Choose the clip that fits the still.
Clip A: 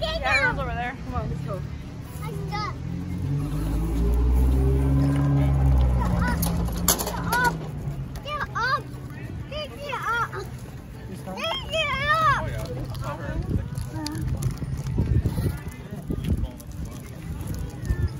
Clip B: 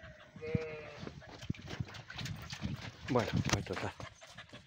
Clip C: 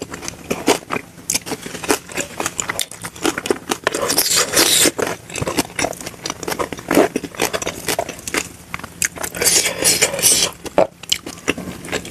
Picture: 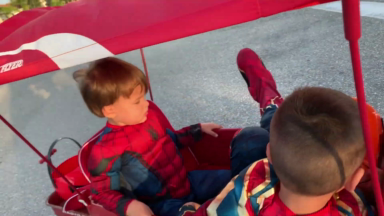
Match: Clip A